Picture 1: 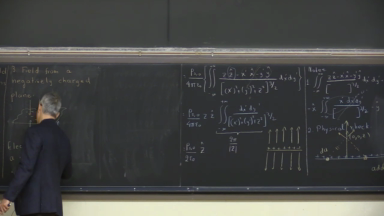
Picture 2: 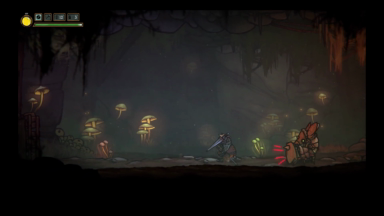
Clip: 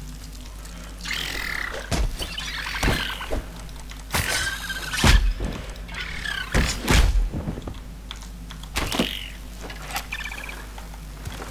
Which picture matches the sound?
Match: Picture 2